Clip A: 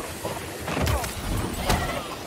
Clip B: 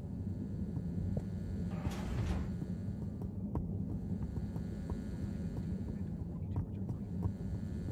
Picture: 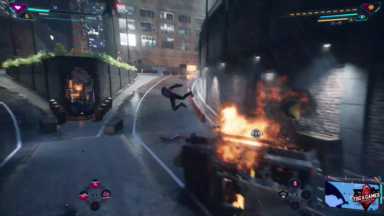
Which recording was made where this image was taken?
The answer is A